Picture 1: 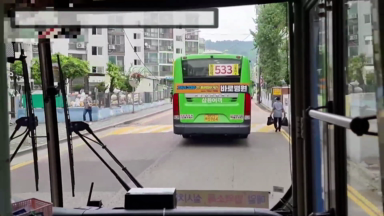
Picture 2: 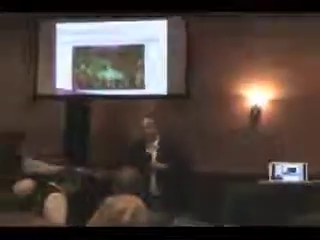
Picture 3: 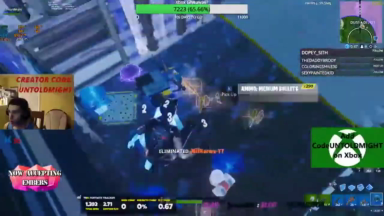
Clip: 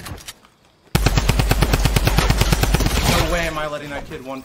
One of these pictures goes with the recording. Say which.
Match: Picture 3